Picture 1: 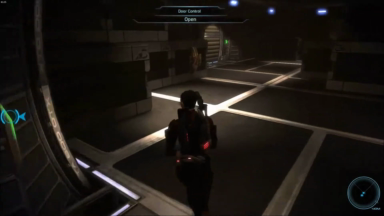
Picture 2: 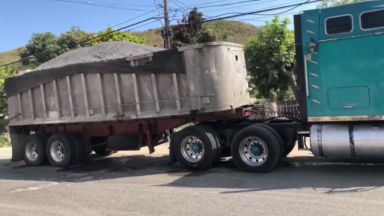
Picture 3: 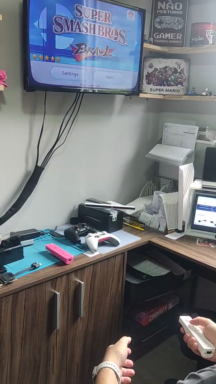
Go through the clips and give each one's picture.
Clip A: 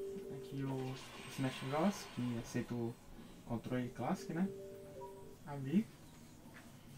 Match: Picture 3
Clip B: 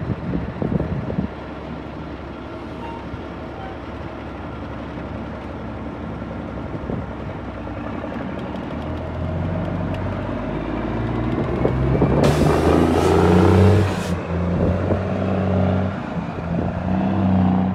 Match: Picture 2